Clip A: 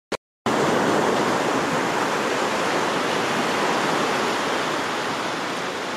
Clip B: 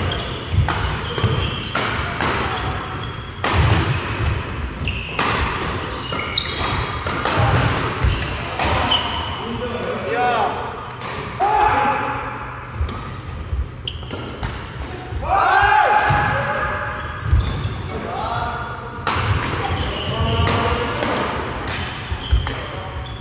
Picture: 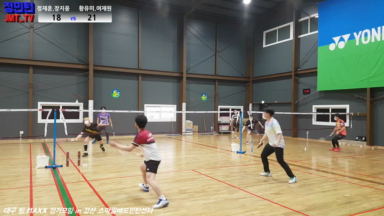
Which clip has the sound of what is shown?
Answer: B